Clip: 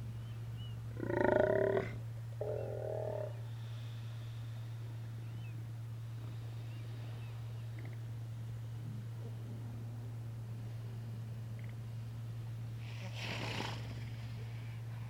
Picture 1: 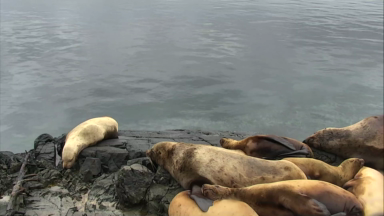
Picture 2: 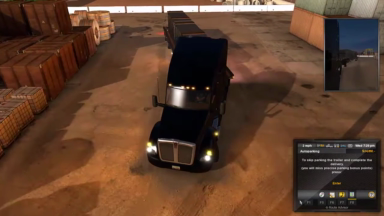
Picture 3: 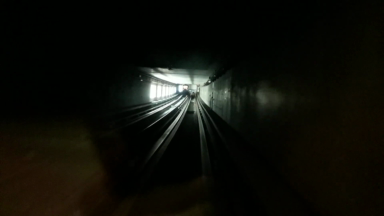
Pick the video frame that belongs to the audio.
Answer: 1